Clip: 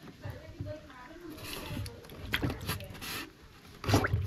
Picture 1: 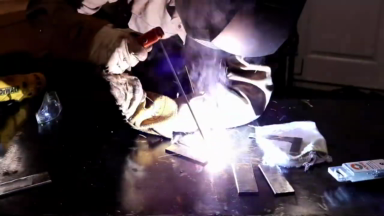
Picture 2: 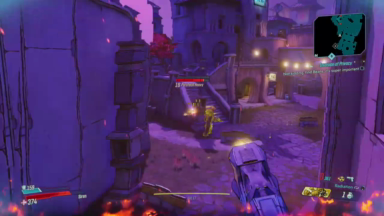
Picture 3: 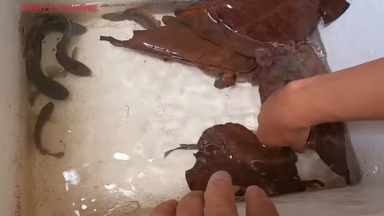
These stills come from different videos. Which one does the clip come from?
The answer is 3